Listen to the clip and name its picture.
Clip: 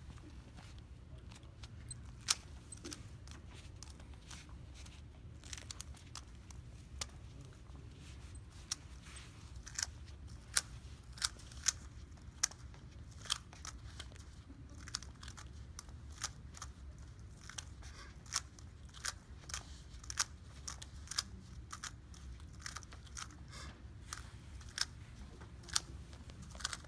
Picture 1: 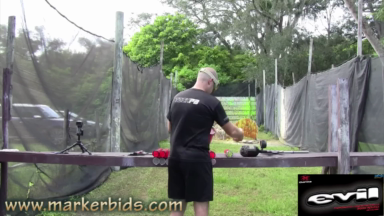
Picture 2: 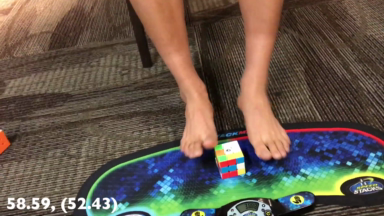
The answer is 2